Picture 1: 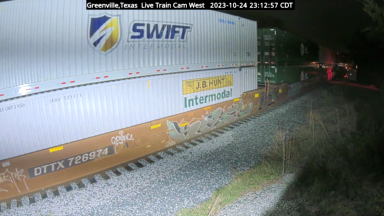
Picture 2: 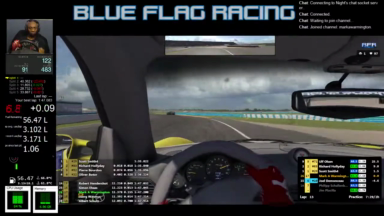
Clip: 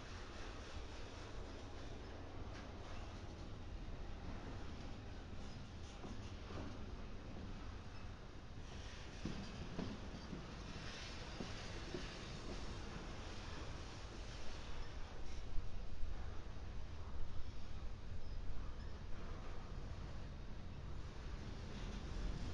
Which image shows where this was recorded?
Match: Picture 1